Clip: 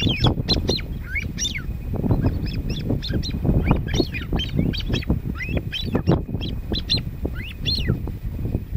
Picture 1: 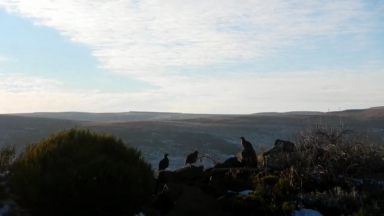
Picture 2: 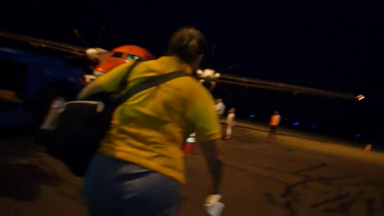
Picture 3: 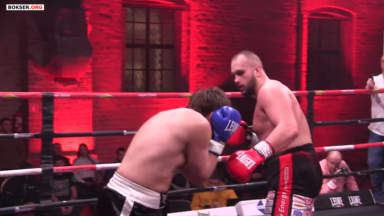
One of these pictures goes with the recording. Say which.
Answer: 1